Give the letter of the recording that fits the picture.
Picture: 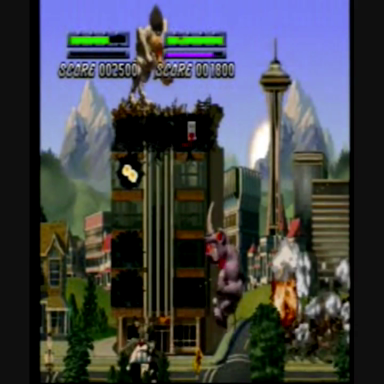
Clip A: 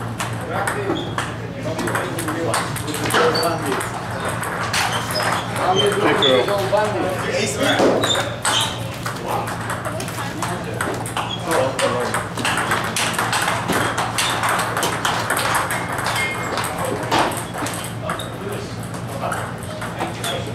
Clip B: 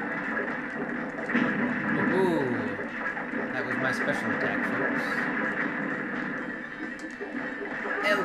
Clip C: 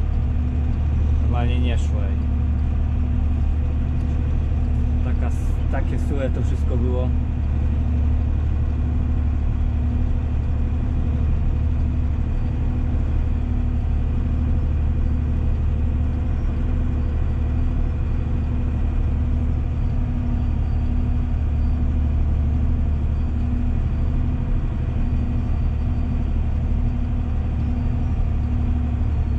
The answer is B